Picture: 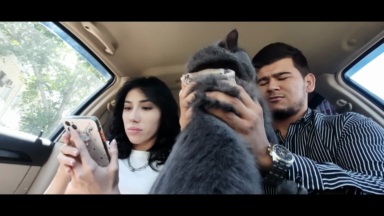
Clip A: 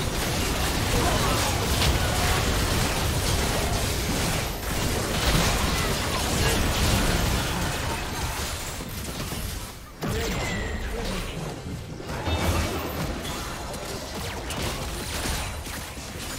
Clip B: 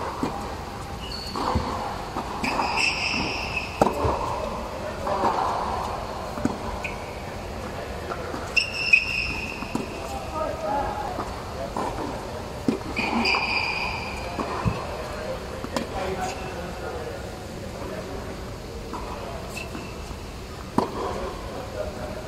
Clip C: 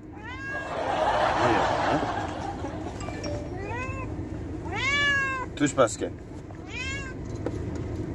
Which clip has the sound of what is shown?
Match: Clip C